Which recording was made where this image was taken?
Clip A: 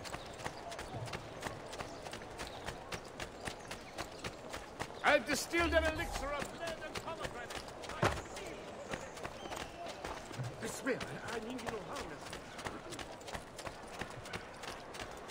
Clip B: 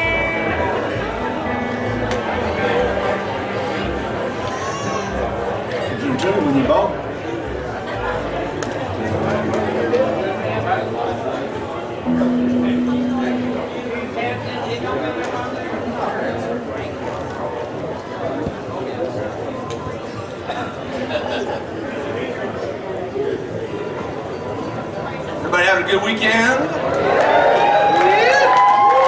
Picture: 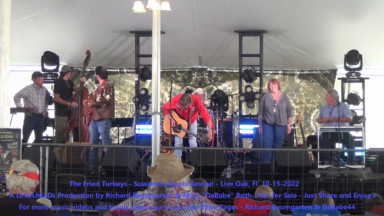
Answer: B